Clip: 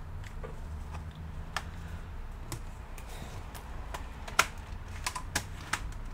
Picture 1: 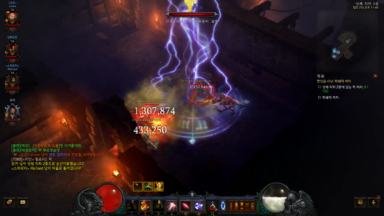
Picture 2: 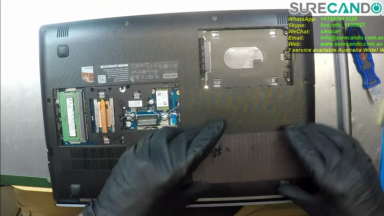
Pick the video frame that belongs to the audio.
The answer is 2